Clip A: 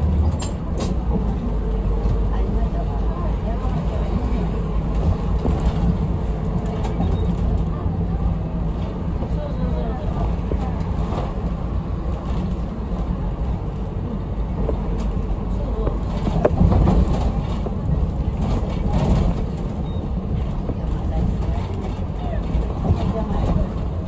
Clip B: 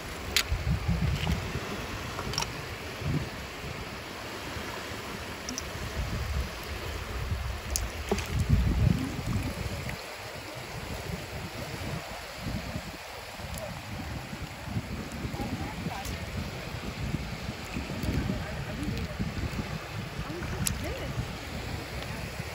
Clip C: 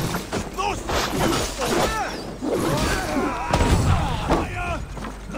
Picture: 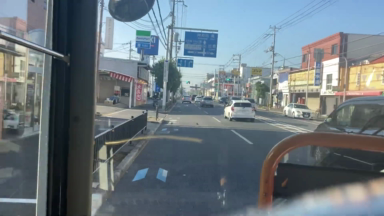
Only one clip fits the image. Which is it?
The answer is A